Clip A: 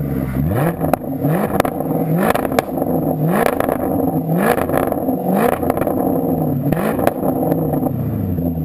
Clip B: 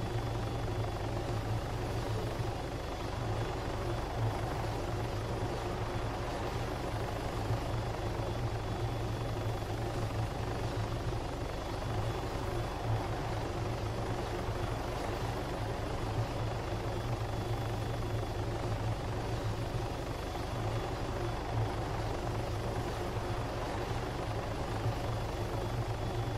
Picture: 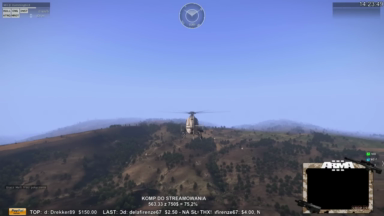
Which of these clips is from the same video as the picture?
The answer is B